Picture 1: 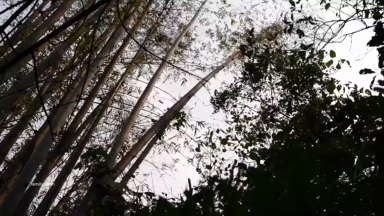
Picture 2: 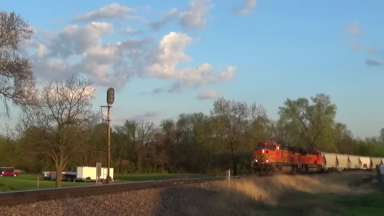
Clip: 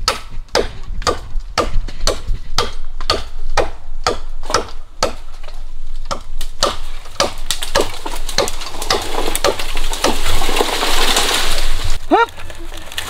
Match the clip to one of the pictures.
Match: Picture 1